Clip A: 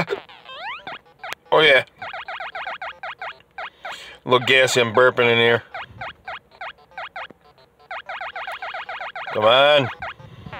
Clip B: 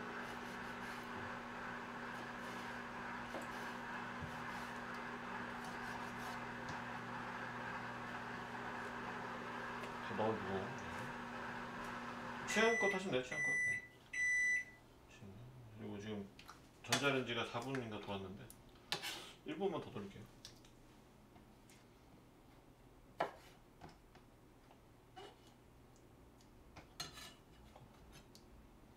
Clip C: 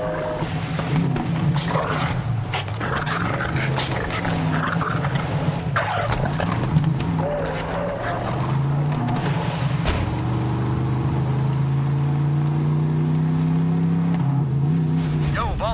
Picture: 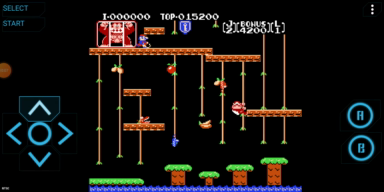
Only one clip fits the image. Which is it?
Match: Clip A